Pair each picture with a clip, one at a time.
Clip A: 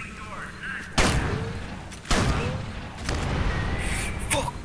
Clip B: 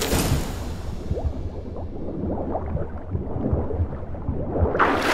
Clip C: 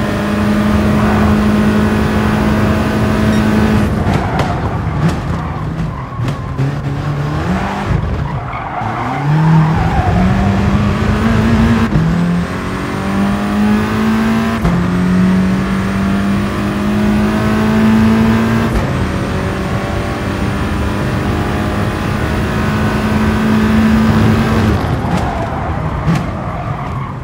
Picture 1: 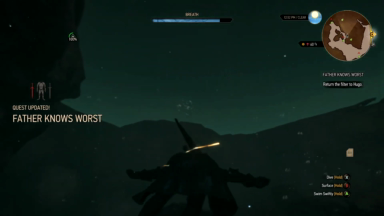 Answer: B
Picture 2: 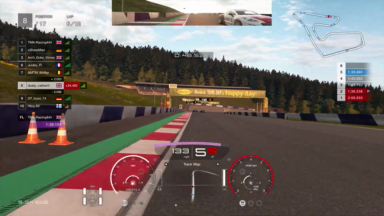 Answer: C